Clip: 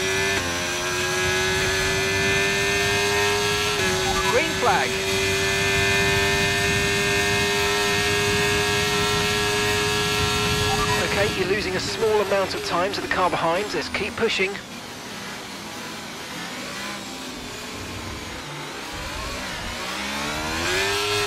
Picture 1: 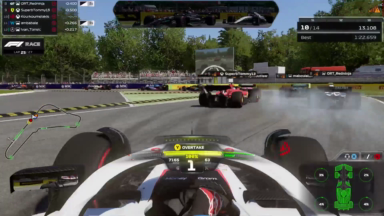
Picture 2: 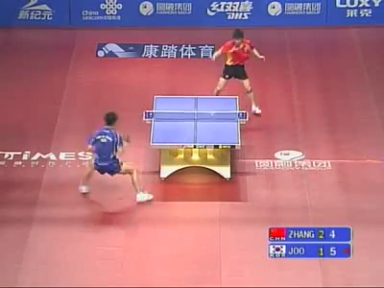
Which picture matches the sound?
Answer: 1